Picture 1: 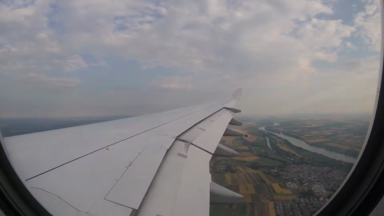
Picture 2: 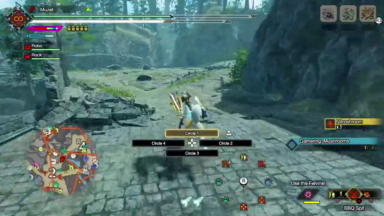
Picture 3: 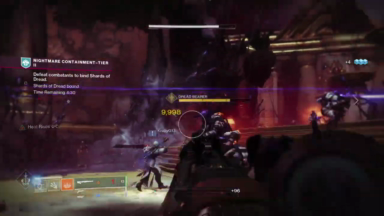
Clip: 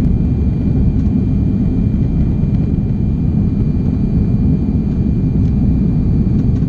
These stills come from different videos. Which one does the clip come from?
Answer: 1